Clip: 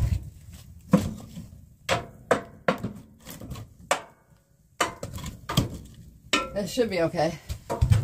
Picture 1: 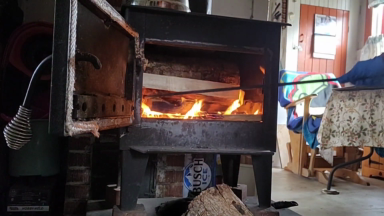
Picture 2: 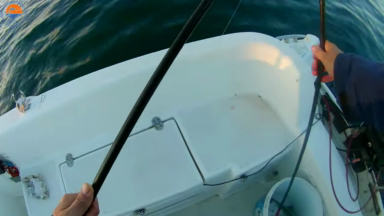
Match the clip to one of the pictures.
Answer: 1